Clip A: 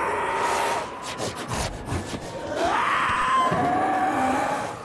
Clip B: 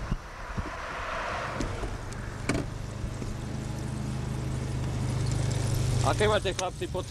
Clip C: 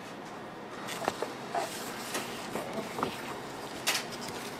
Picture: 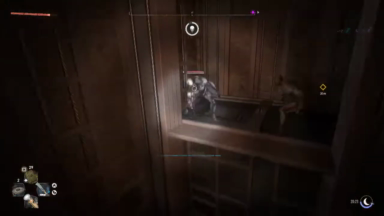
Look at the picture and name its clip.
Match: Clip A